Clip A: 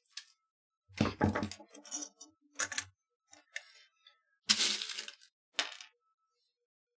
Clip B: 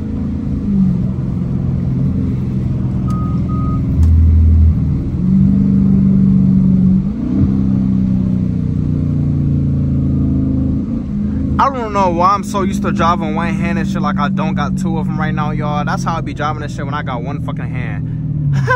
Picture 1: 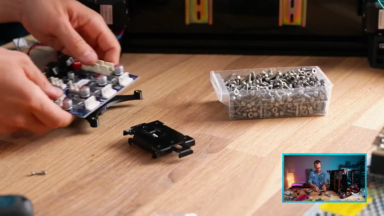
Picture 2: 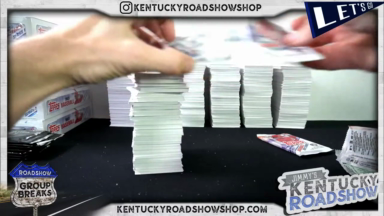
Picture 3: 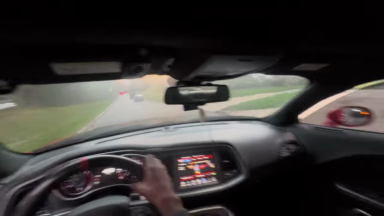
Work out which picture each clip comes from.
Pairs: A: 1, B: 3